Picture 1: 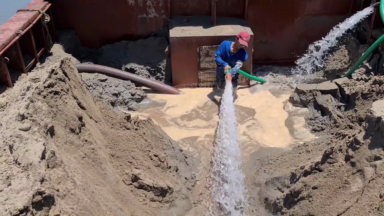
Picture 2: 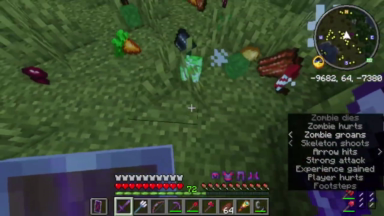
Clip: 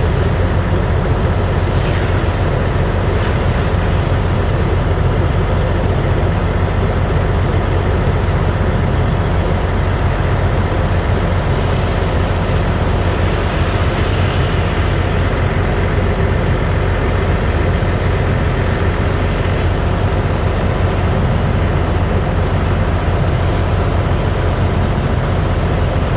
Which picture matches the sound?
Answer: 1